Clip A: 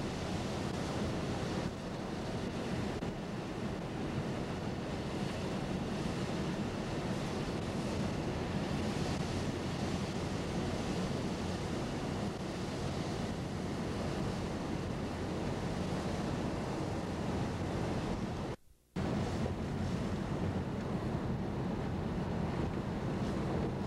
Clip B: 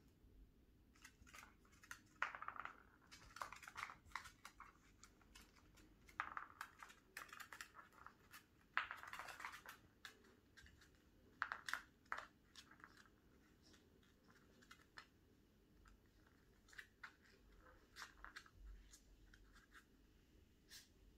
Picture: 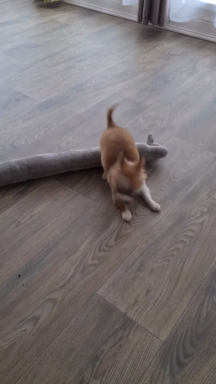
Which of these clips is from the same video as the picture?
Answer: B